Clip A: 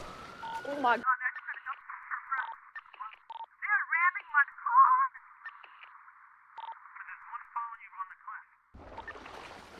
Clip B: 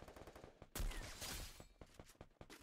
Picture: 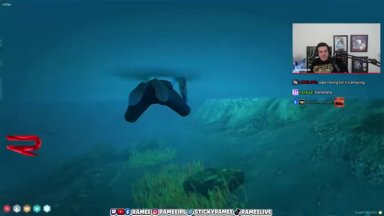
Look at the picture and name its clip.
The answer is A